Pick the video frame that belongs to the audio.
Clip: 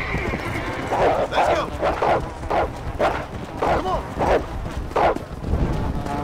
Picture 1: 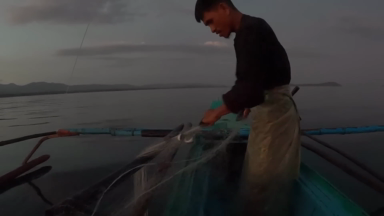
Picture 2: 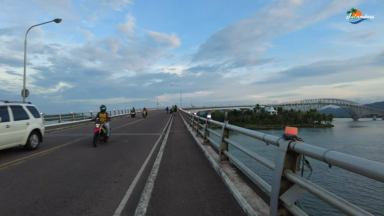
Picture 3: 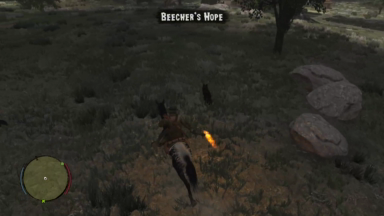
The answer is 3